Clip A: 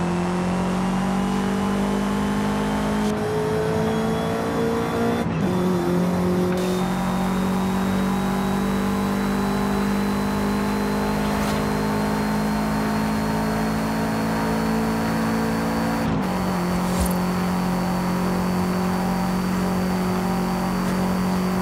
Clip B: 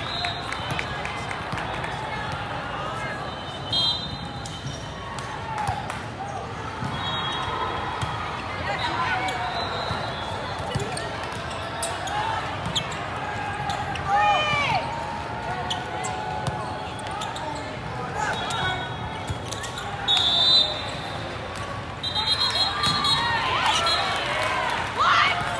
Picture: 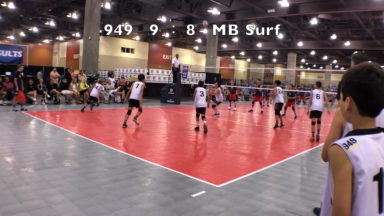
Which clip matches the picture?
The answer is B